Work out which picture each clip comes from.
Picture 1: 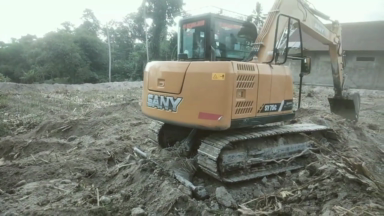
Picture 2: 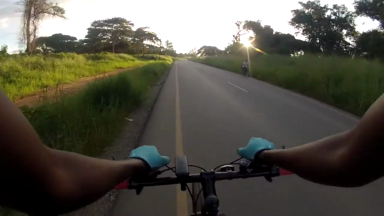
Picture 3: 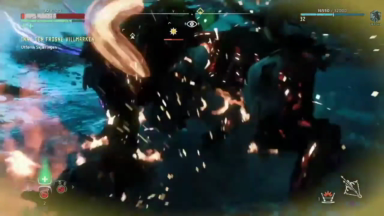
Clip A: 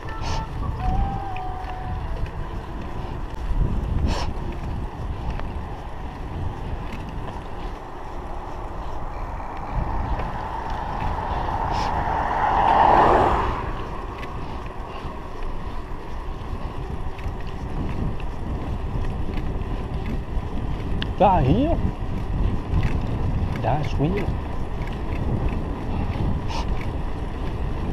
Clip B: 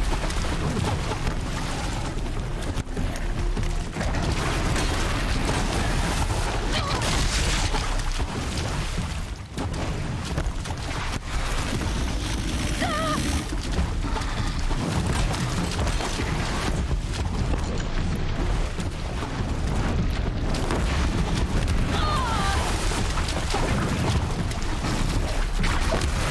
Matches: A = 2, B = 3